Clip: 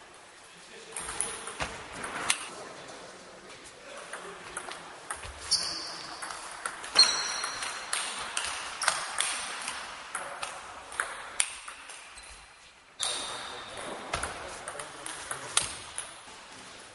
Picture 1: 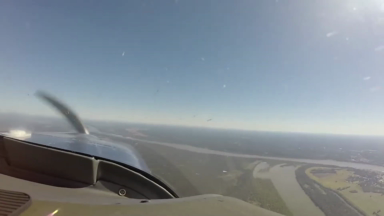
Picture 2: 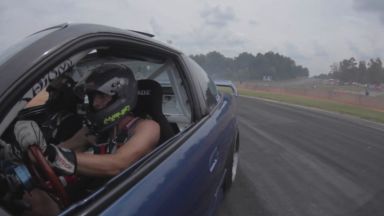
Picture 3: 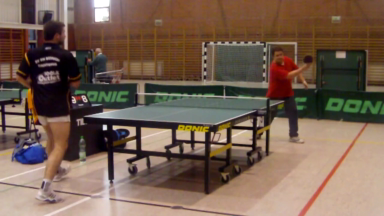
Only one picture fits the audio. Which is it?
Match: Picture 3